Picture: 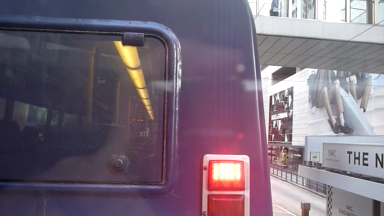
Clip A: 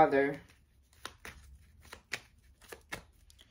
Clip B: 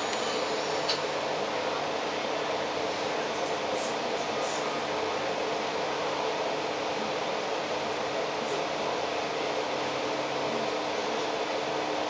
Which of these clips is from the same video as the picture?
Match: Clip B